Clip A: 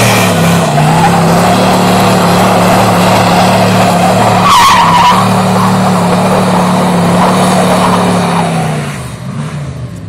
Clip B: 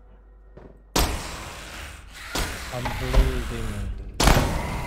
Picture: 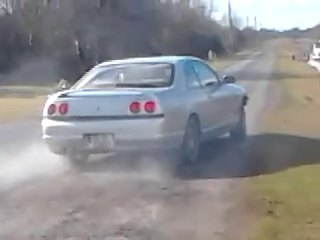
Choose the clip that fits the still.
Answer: A